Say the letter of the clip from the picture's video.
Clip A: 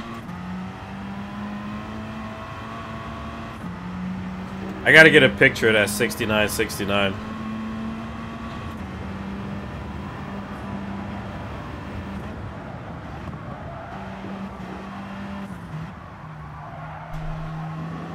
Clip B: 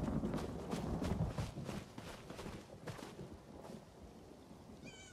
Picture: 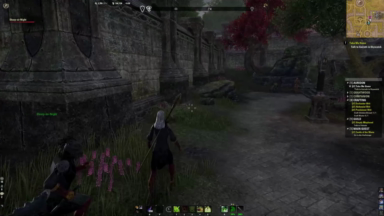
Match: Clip B